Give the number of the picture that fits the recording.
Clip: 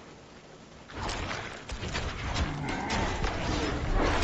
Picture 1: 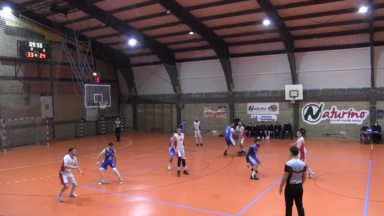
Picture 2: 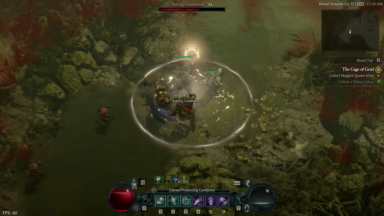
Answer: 2